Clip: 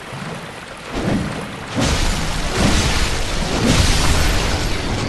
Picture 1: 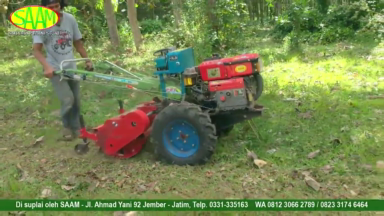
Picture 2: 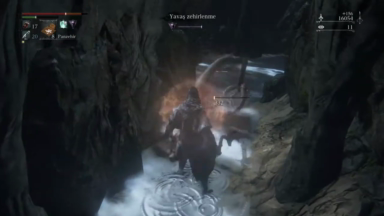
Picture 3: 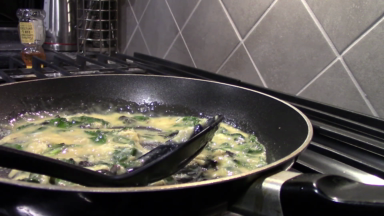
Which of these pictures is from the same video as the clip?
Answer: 2